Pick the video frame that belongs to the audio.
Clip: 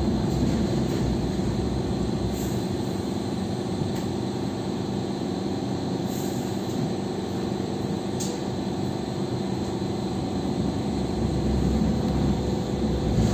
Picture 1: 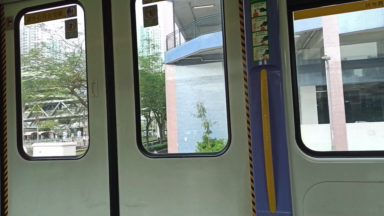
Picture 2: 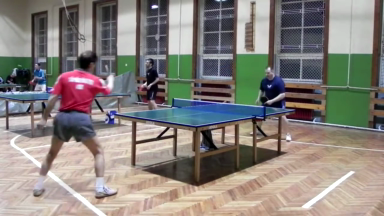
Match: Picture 1